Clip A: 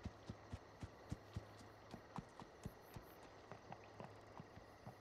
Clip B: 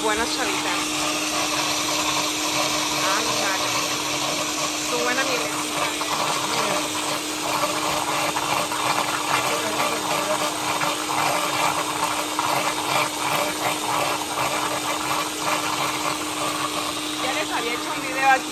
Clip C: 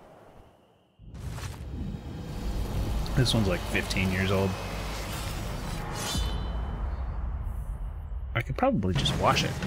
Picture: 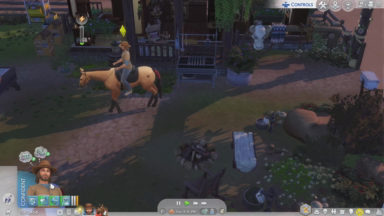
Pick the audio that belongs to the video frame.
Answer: A